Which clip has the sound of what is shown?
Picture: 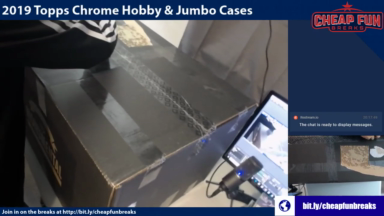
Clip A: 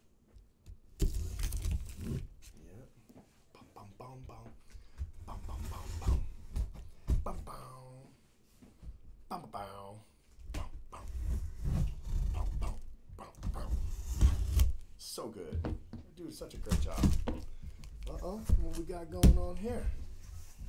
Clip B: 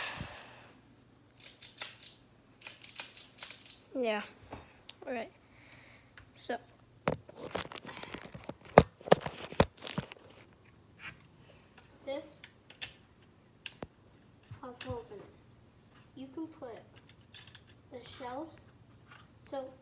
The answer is A